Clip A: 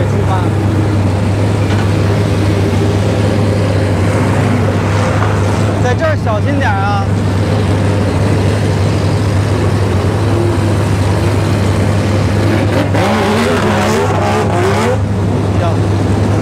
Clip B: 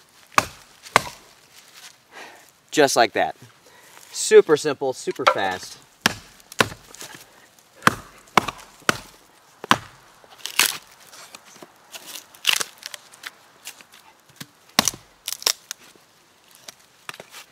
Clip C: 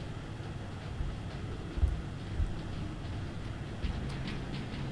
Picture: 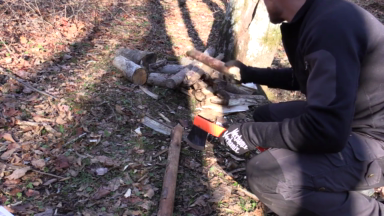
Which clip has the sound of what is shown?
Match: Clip B